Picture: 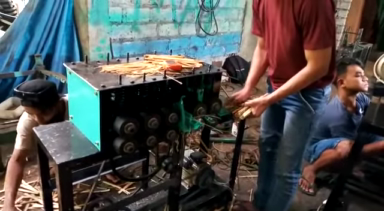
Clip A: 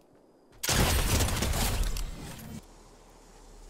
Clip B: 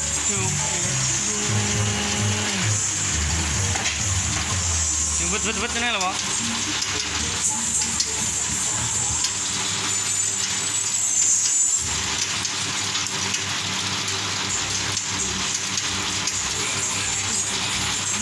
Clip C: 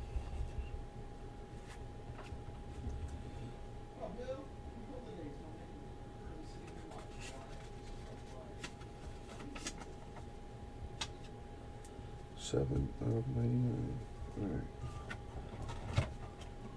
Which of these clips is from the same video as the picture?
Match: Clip B